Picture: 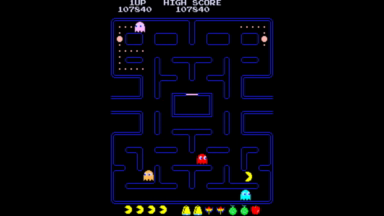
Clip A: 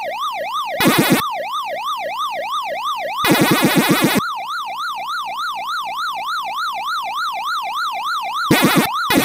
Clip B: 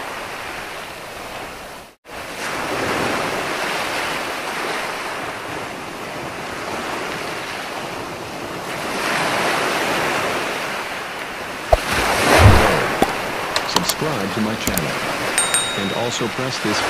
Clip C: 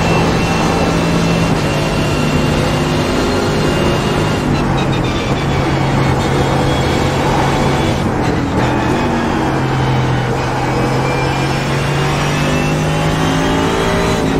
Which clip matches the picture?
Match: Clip A